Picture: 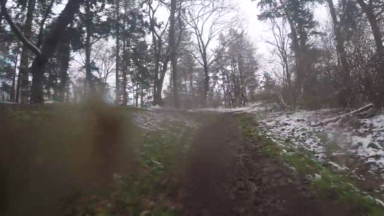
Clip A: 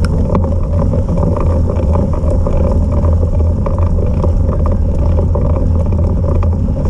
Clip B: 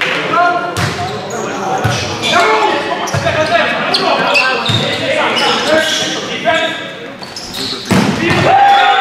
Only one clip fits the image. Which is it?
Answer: A